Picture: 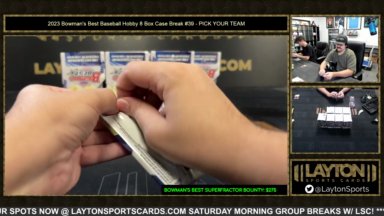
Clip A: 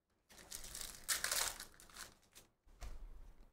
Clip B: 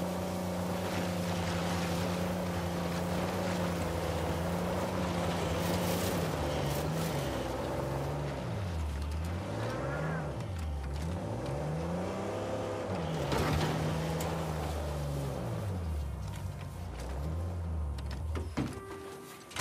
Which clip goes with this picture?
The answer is A